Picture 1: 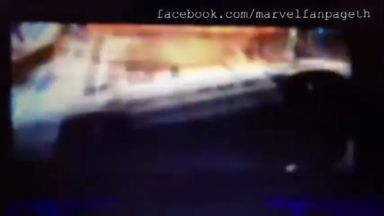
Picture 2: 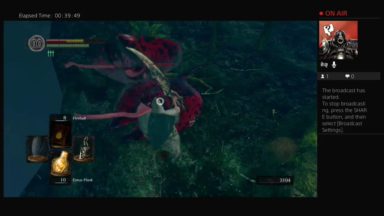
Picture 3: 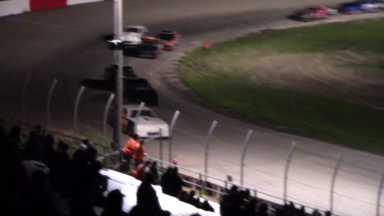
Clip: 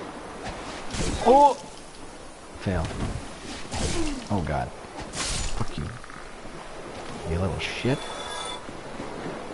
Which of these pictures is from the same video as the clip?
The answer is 2